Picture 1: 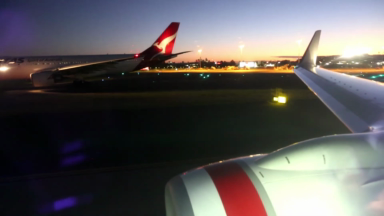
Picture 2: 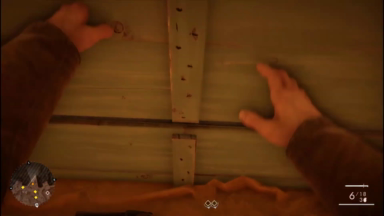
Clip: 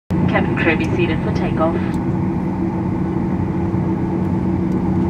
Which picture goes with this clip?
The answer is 1